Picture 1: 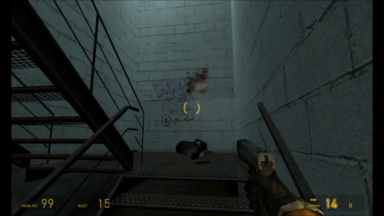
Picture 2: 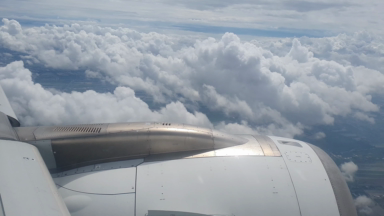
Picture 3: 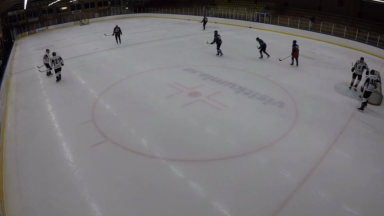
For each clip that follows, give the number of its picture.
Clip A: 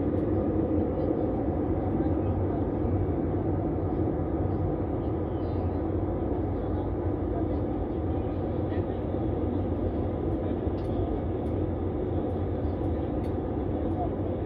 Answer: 2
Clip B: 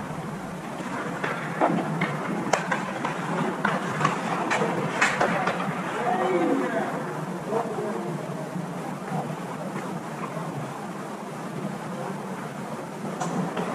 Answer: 3